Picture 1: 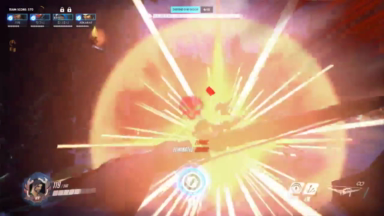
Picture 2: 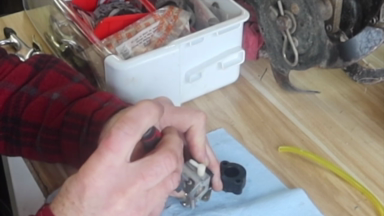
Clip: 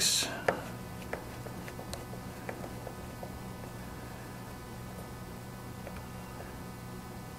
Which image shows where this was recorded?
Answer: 2